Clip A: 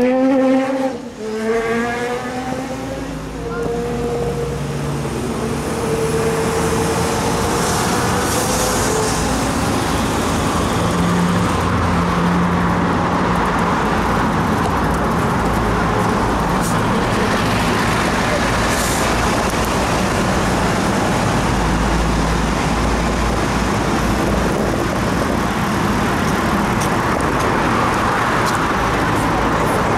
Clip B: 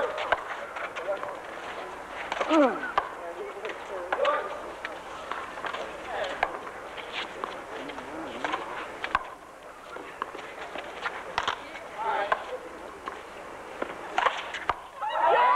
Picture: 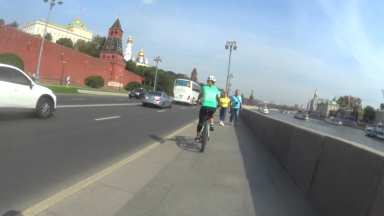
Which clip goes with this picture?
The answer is A